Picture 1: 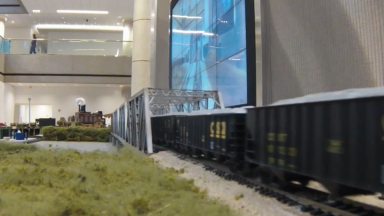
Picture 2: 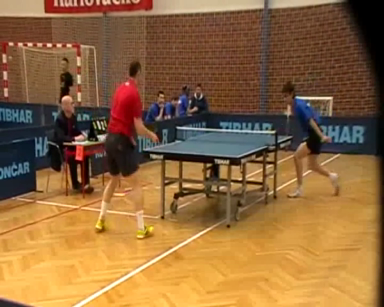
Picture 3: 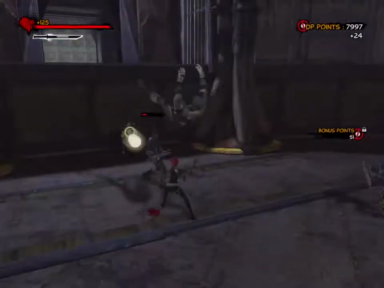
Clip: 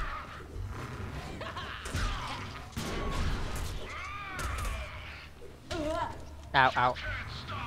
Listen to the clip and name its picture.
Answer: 3